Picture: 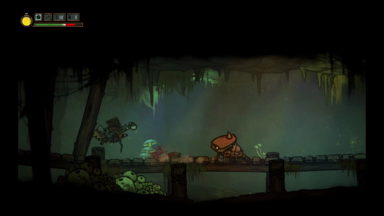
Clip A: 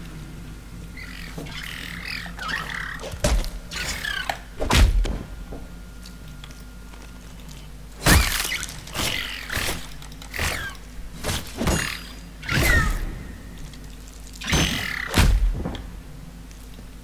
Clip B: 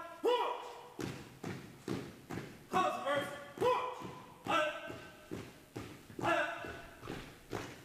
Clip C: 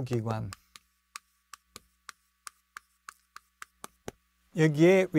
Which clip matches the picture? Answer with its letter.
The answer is A